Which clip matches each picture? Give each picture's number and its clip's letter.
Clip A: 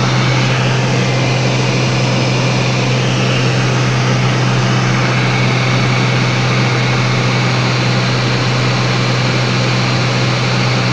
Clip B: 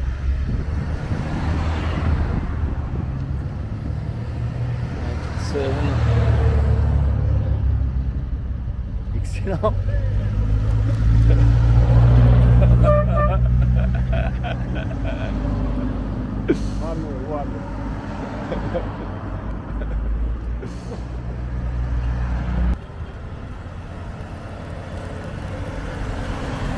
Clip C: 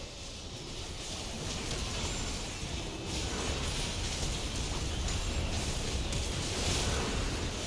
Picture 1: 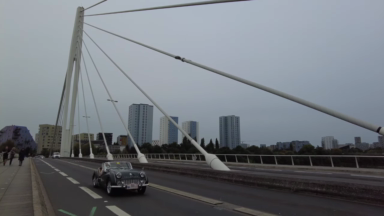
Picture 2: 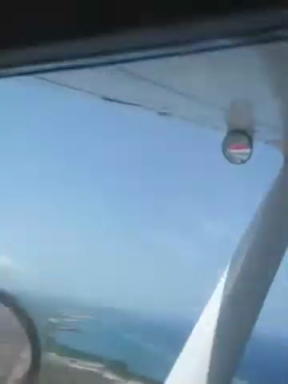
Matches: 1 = B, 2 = A